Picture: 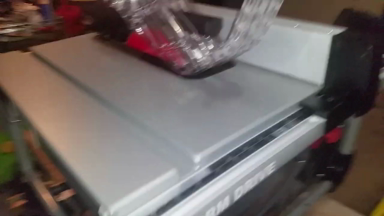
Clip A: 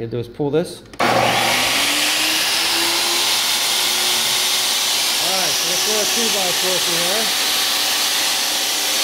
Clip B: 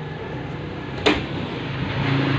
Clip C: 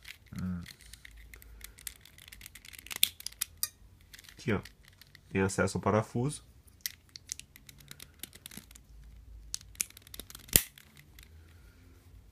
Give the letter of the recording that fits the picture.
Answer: A